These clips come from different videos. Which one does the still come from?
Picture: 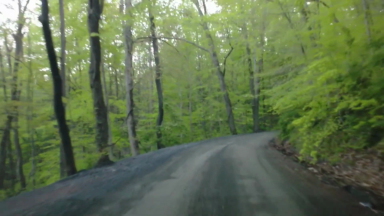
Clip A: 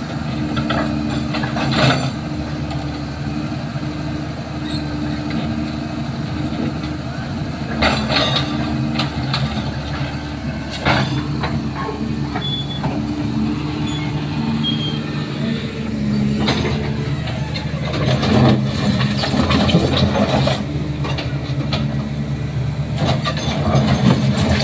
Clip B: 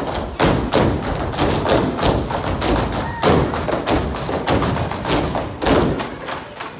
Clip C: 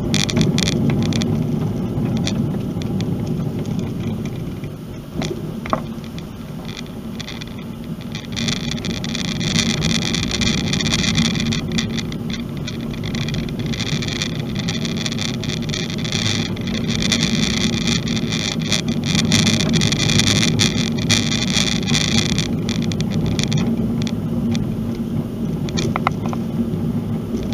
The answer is C